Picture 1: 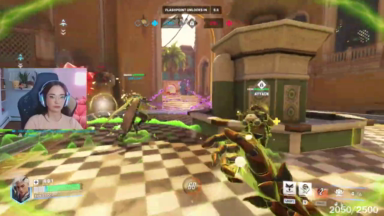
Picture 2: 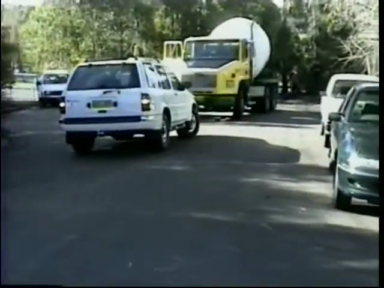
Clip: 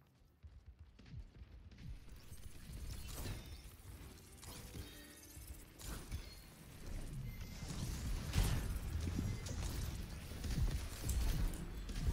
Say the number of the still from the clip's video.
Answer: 1